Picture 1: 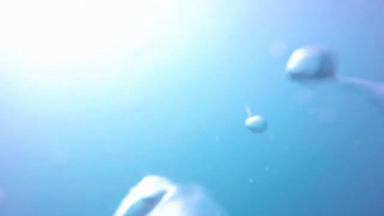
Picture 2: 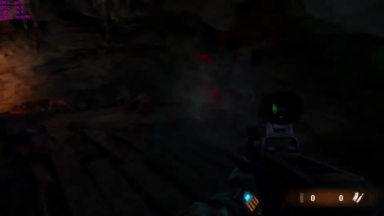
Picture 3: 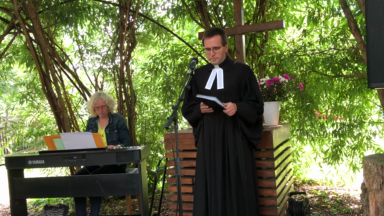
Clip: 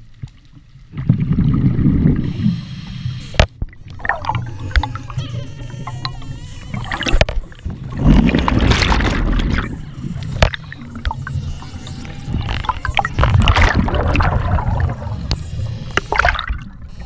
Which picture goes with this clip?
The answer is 1